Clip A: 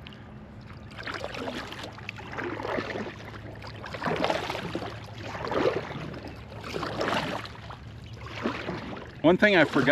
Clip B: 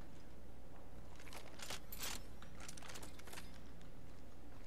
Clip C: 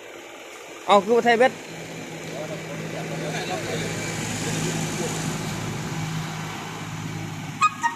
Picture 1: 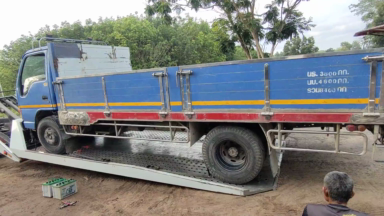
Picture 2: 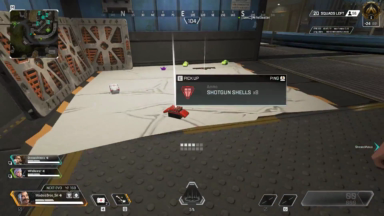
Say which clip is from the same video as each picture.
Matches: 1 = C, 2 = B